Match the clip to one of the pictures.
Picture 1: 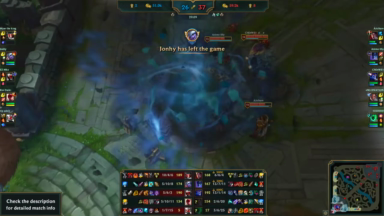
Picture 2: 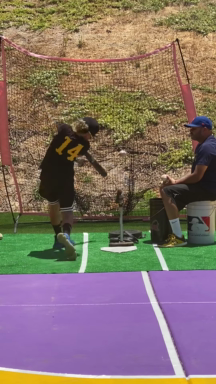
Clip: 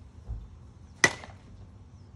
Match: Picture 2